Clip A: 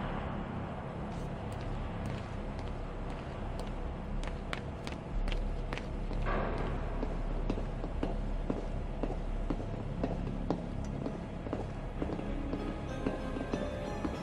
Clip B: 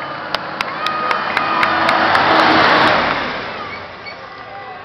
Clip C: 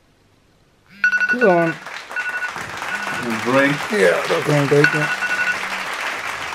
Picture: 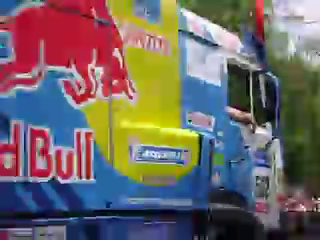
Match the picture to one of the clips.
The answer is B